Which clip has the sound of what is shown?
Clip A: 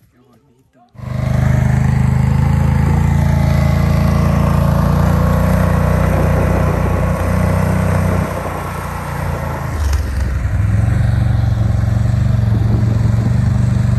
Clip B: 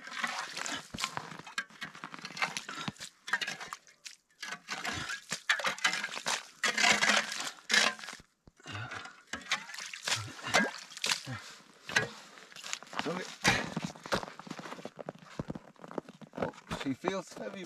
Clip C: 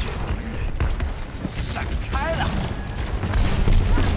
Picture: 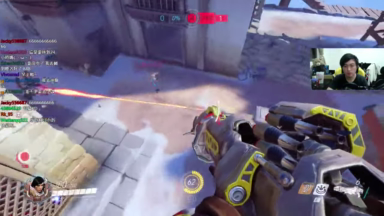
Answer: C